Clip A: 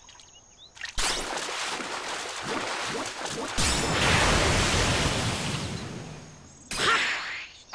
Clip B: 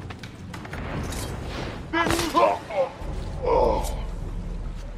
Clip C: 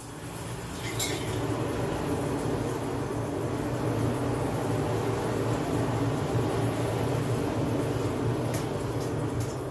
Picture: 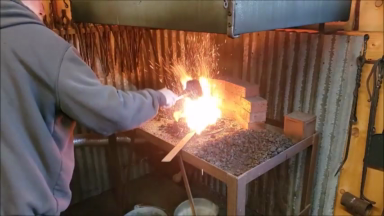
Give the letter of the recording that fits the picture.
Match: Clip C